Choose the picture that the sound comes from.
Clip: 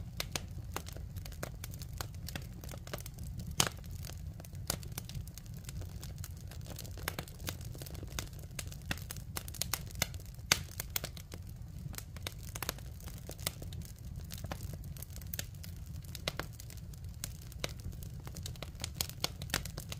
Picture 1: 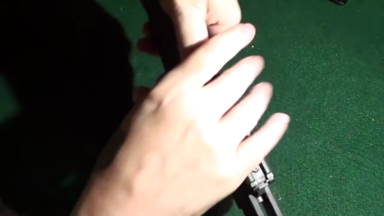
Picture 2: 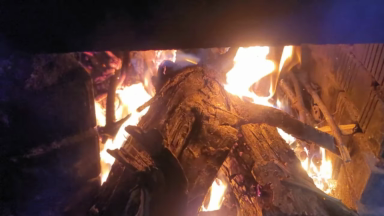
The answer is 2